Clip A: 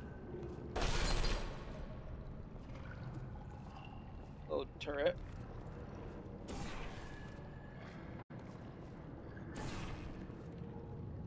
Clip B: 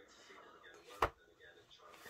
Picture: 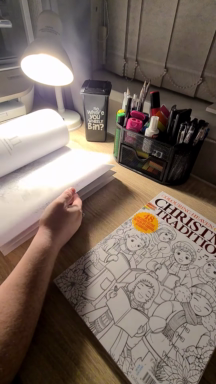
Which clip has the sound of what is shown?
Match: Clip B